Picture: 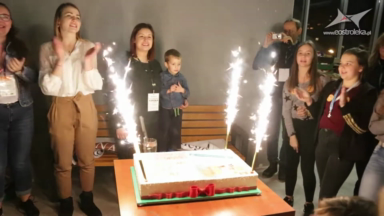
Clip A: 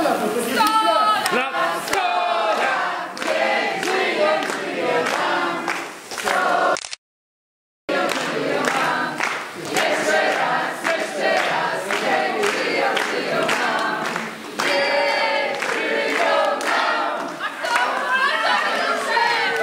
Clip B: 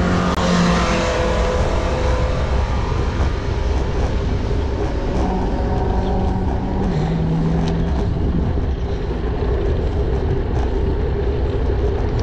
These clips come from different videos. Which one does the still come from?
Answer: A